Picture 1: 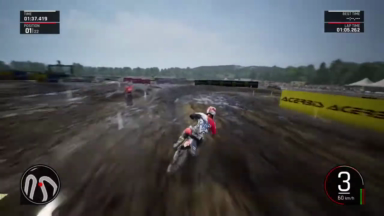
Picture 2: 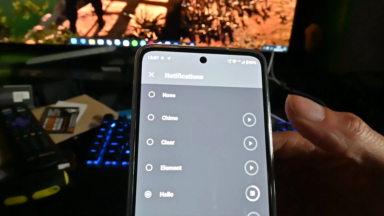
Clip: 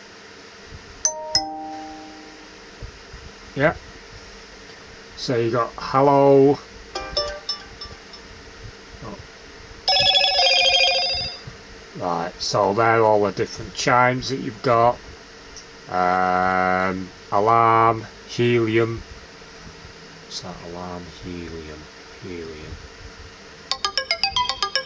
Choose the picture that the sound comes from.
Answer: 2